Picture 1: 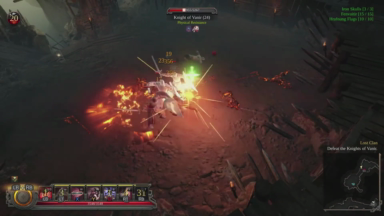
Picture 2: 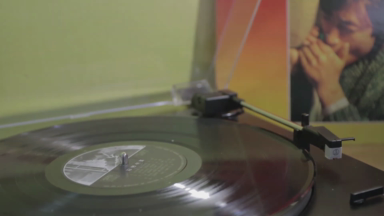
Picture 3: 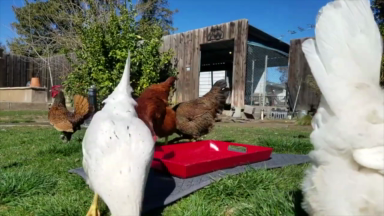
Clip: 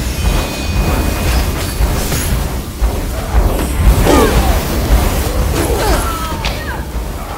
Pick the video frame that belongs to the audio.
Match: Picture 1